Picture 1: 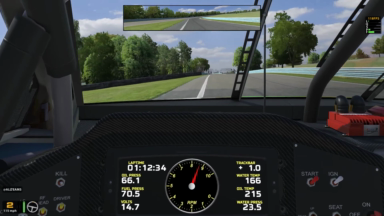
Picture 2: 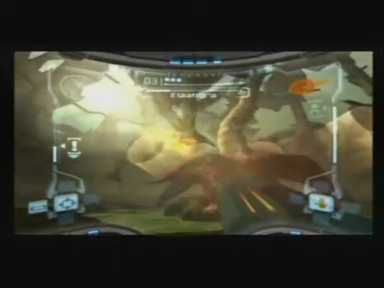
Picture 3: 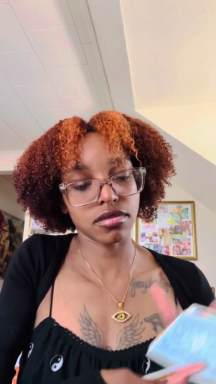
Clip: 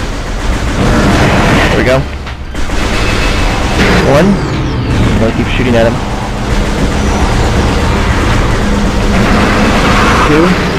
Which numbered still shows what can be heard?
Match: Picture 2